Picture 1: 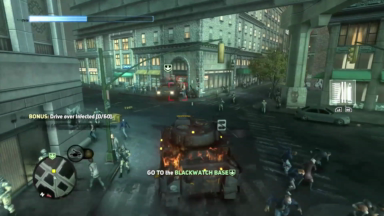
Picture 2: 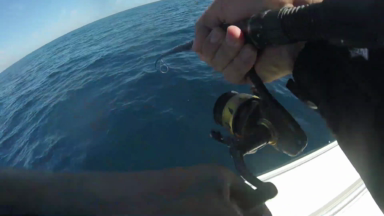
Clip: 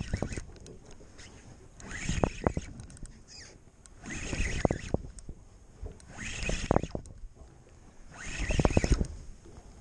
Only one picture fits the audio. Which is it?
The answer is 2